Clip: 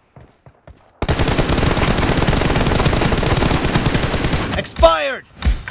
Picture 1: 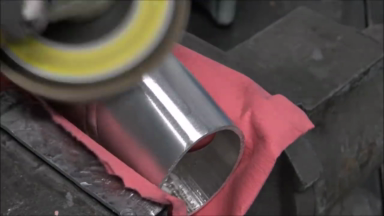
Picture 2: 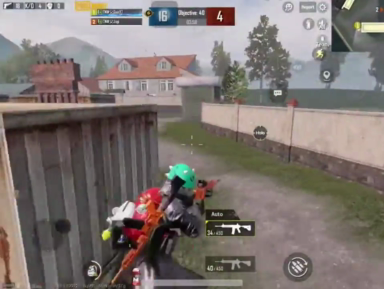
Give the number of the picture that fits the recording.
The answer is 2